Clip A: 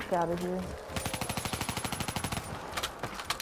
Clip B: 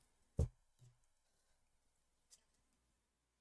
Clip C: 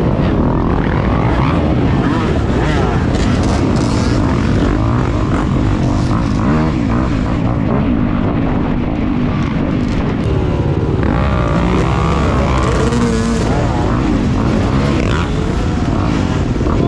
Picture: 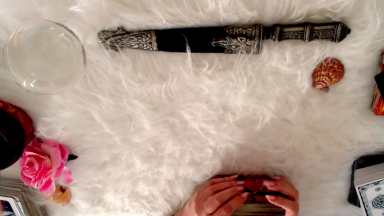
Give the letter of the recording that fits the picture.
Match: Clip B